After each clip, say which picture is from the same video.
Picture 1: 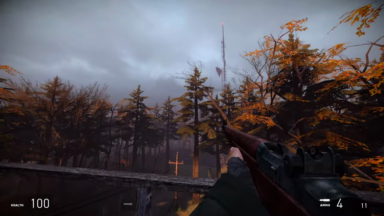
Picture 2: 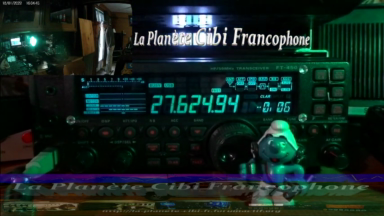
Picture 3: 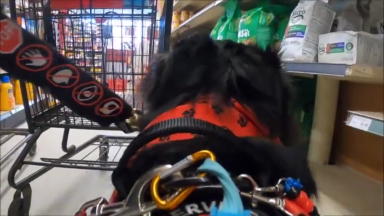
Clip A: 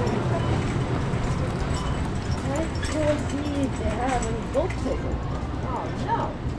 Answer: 3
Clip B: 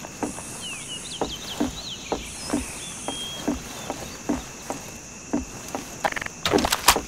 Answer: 1